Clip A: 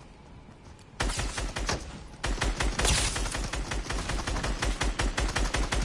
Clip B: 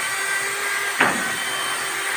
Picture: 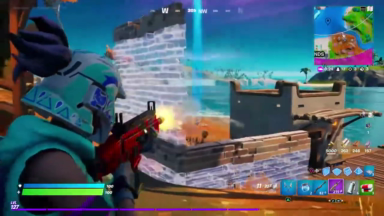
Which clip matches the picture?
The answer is A